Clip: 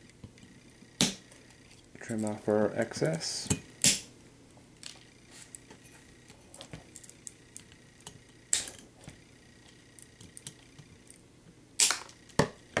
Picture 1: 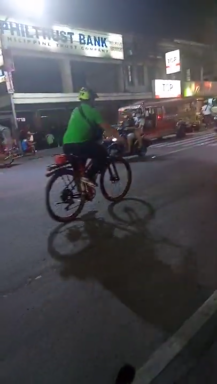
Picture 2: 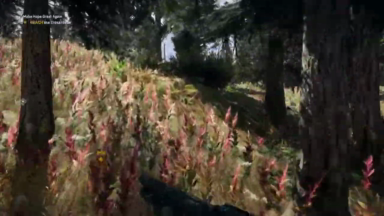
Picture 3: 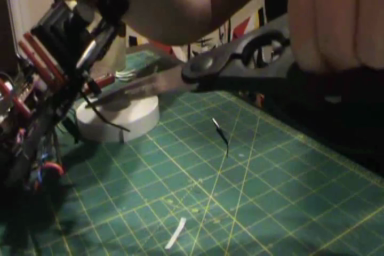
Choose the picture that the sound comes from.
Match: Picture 3